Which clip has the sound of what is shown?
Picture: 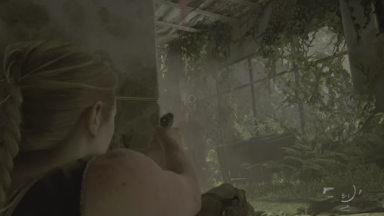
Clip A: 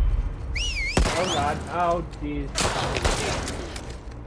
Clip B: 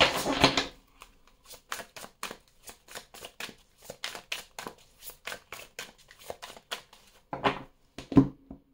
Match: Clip A